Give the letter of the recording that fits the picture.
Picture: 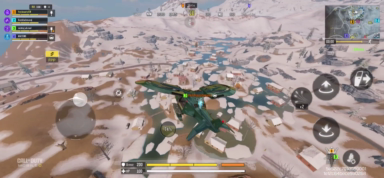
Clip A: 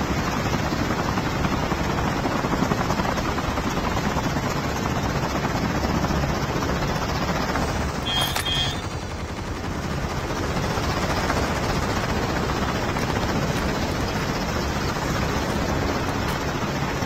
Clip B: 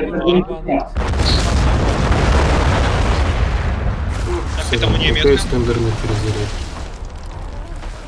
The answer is A